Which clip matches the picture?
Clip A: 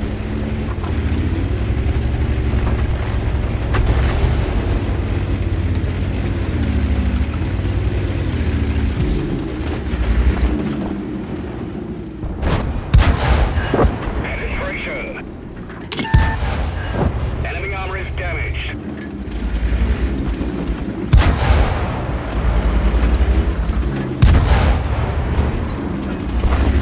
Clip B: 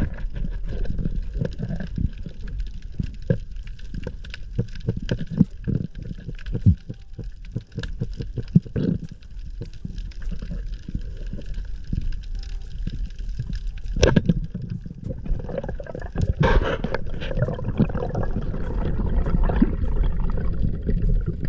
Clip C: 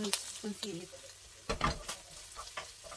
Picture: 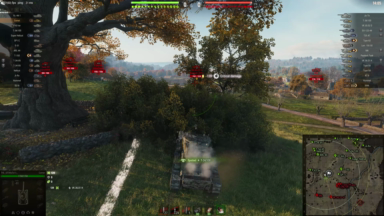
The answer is A